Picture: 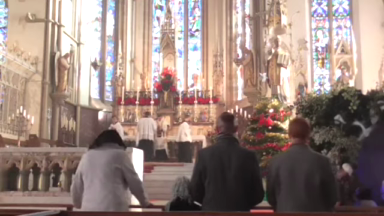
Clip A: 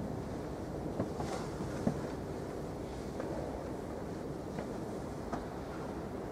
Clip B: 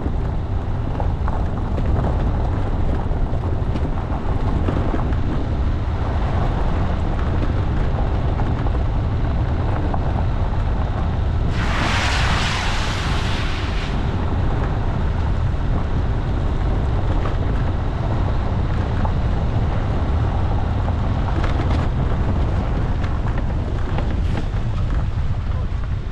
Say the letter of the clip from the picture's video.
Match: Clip A